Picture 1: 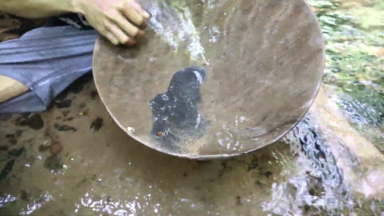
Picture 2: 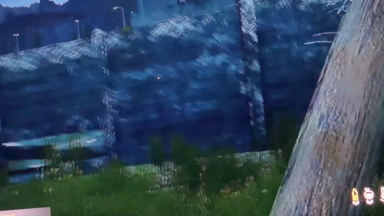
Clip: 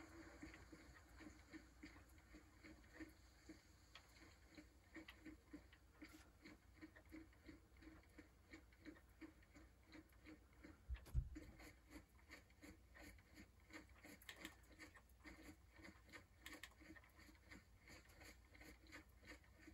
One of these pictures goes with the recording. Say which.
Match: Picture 2